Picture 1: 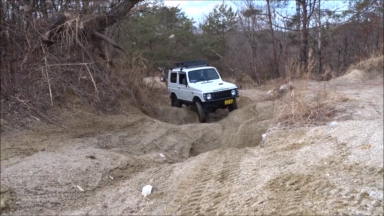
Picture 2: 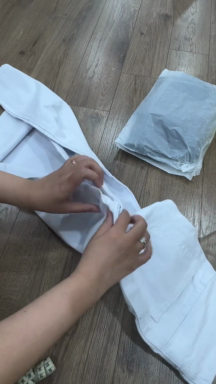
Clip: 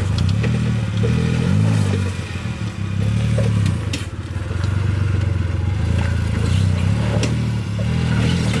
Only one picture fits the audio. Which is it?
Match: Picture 1